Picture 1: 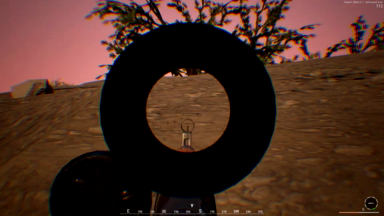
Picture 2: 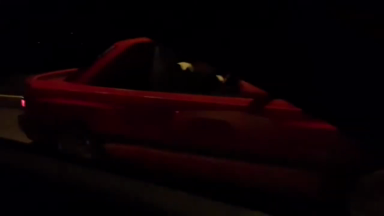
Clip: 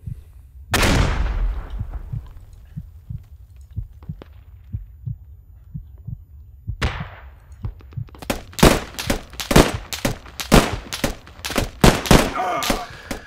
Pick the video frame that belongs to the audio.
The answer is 1